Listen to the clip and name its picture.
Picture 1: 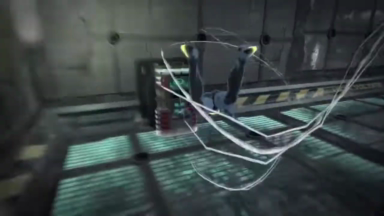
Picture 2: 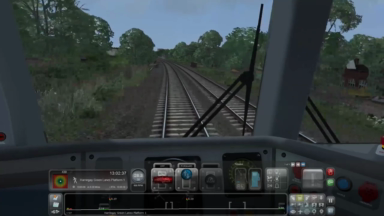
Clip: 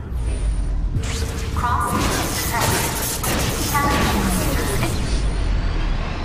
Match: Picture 1